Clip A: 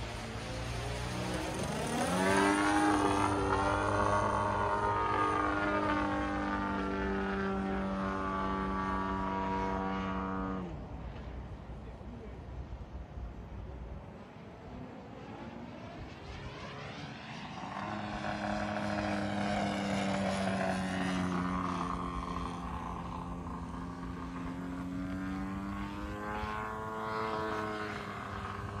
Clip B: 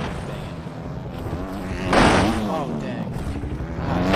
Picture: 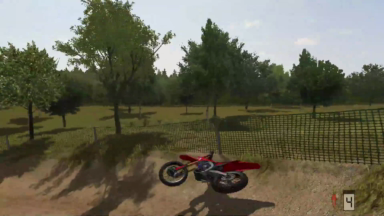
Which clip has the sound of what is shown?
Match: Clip B